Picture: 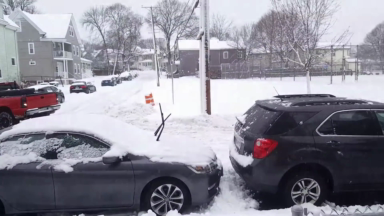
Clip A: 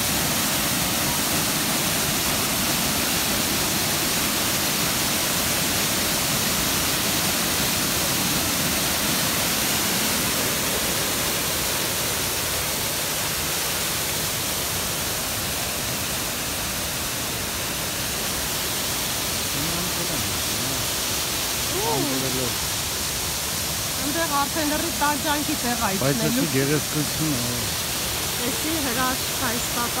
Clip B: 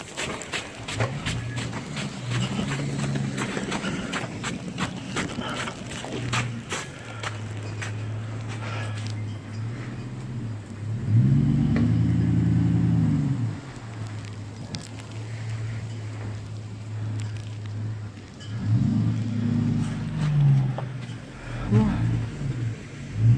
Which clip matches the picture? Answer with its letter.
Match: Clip B